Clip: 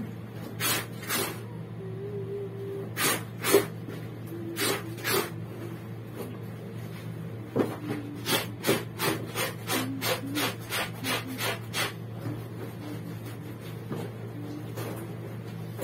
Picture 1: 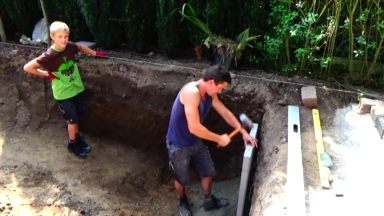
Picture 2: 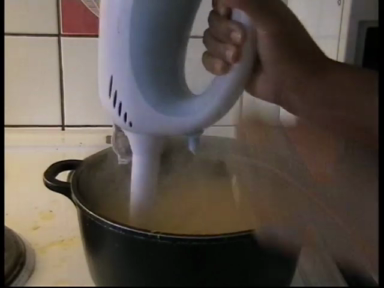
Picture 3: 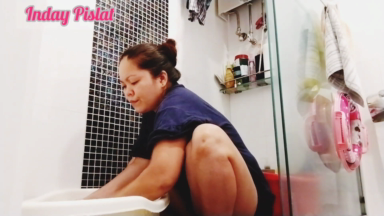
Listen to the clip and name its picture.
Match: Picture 3